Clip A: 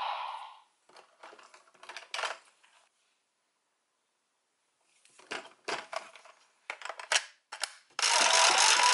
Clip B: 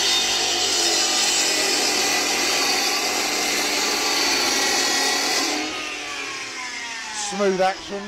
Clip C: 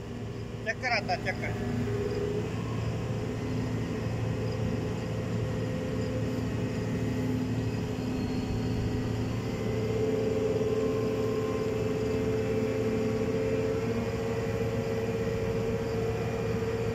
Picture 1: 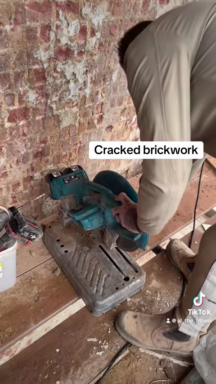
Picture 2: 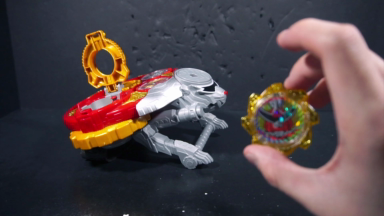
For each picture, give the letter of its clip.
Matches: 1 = B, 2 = A